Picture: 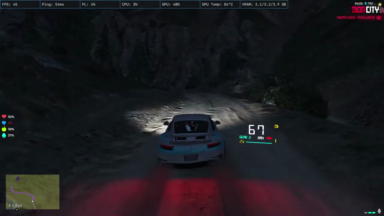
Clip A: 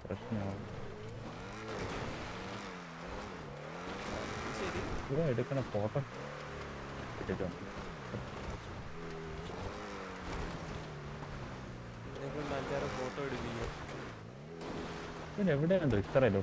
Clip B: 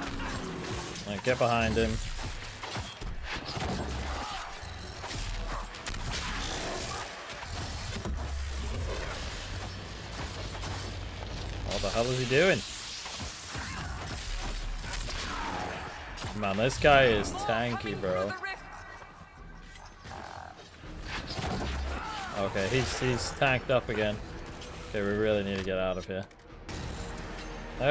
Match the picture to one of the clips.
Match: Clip A